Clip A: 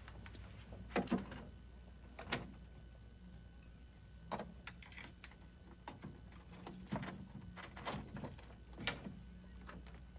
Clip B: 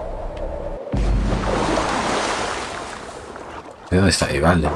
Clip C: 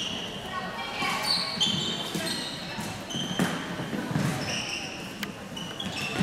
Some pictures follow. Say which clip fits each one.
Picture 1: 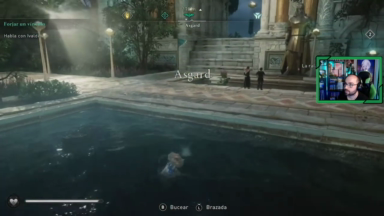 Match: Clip B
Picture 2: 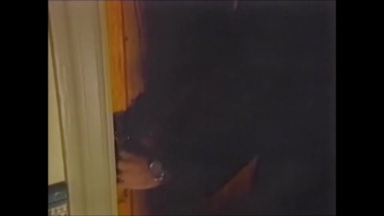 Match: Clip A